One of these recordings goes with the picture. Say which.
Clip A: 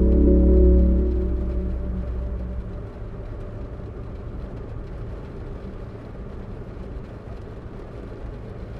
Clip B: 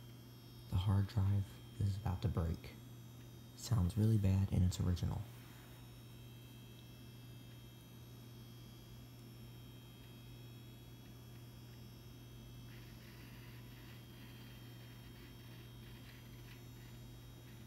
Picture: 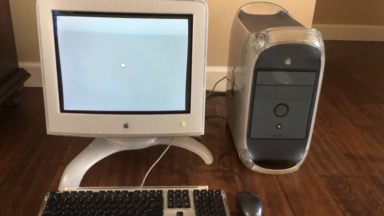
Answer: B